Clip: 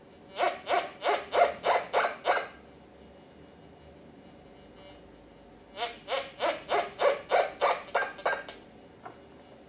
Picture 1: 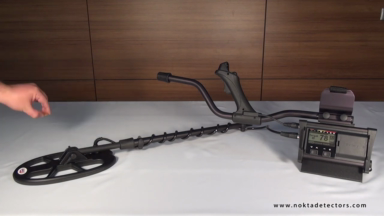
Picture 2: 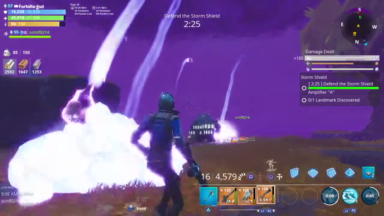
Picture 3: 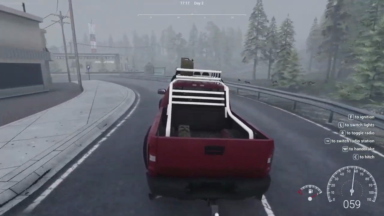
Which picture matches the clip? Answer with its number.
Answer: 1